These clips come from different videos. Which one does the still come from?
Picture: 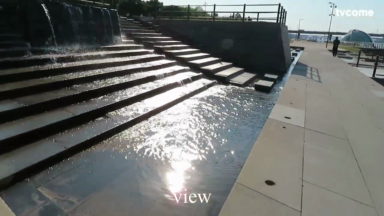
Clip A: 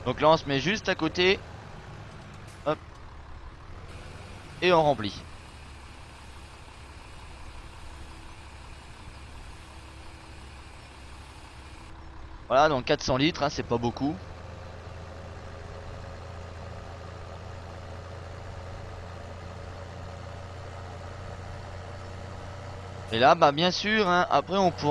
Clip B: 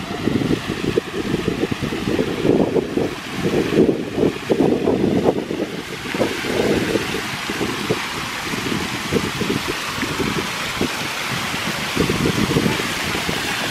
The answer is B